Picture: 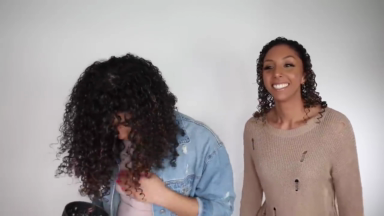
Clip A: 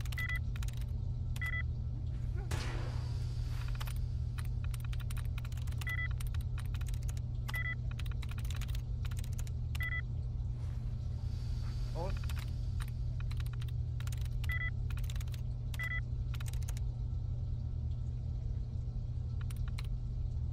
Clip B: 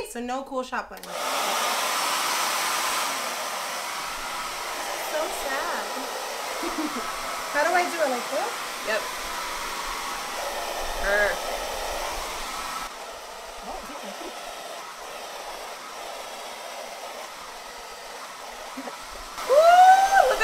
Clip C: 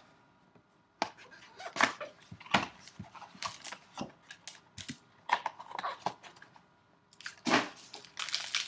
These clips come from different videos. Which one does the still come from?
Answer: B